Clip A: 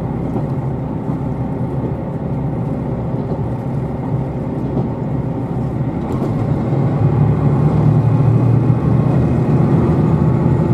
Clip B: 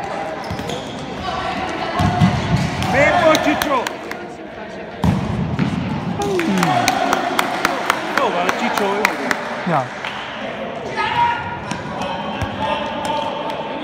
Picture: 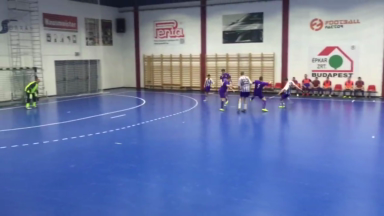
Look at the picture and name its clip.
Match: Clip B